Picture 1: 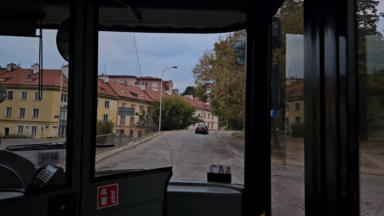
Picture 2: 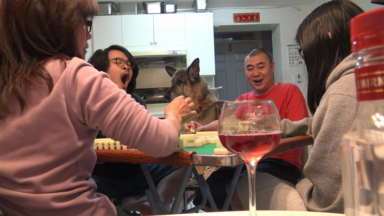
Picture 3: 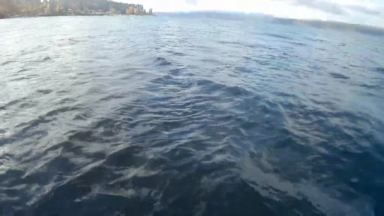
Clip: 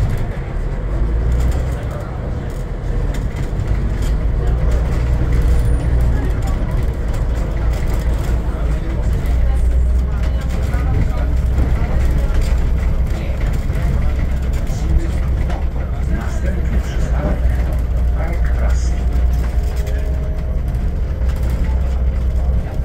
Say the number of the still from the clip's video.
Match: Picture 1